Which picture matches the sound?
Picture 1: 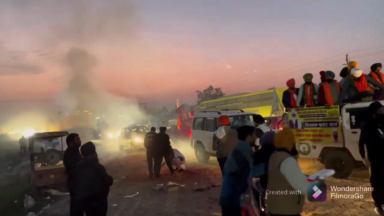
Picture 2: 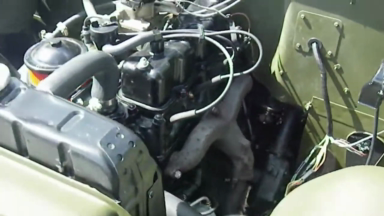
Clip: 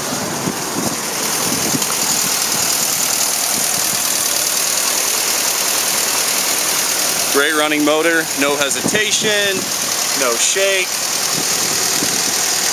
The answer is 2